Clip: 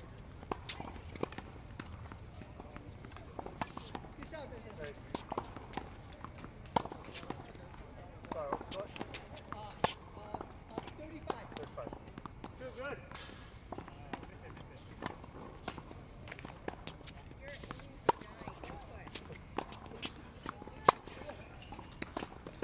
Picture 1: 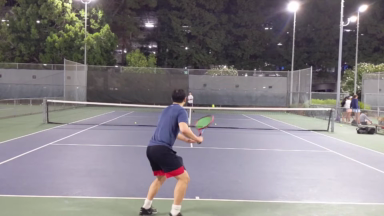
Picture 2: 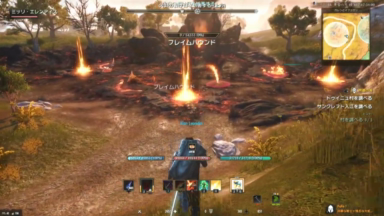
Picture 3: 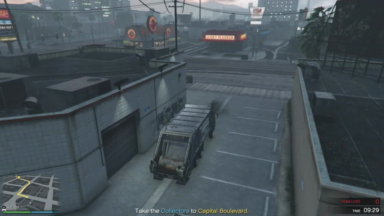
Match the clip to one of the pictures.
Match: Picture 1